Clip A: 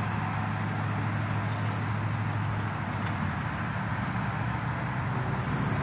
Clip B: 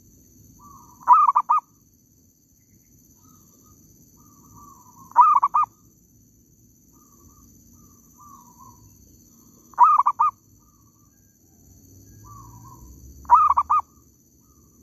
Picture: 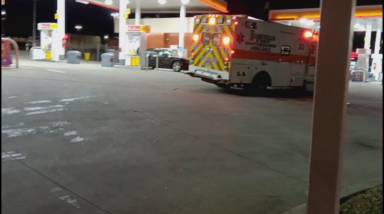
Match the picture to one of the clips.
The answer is A